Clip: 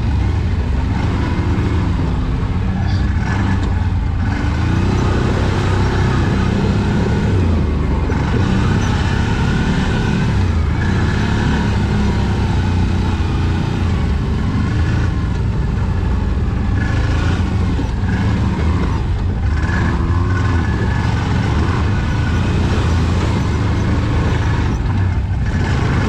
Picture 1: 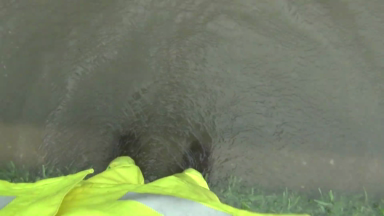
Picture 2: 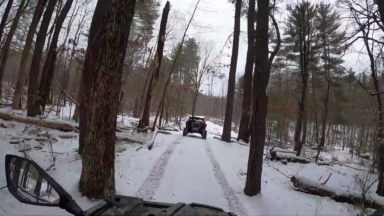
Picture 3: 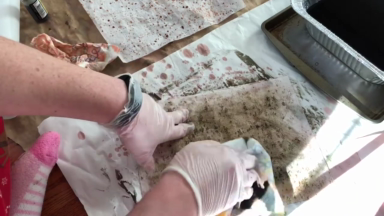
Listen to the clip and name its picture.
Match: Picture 2